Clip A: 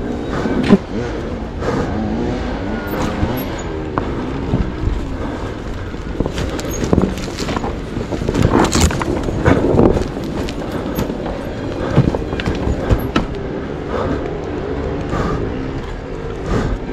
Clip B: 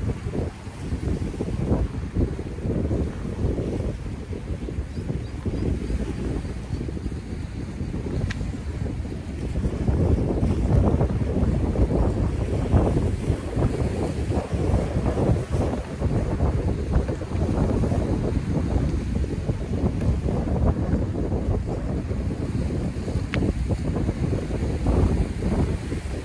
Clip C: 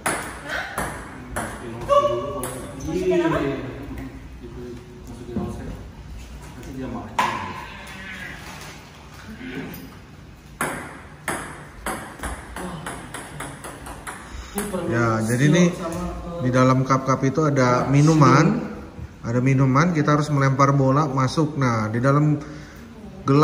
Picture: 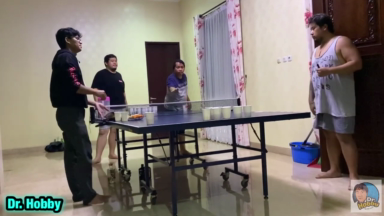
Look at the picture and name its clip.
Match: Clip C